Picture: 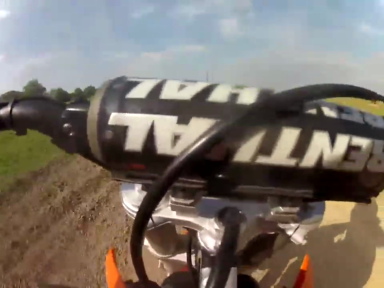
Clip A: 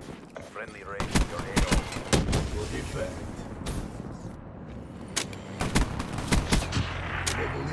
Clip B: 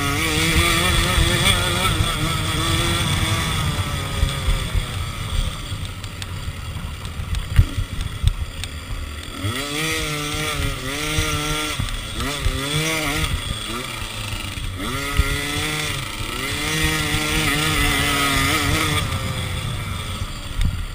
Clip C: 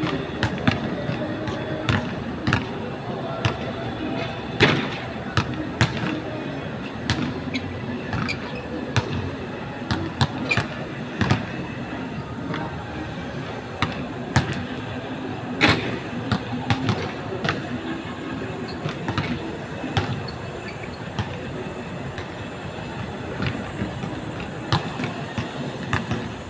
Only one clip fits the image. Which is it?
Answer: B